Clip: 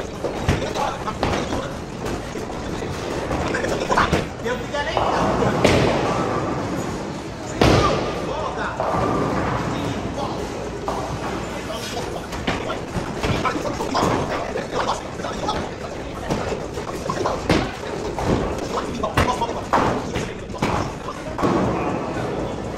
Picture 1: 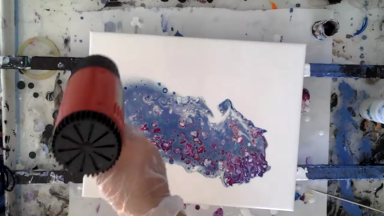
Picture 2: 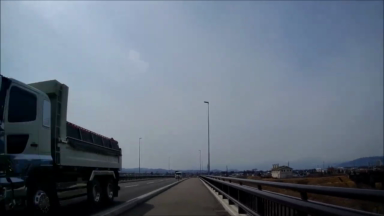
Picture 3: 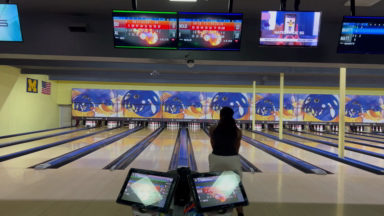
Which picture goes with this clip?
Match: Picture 3